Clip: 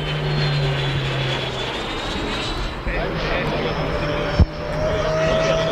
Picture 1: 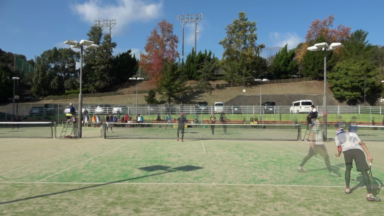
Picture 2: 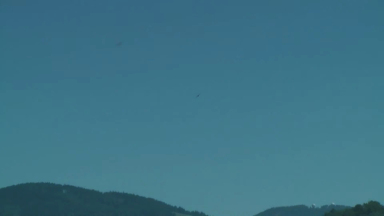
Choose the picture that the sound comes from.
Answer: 2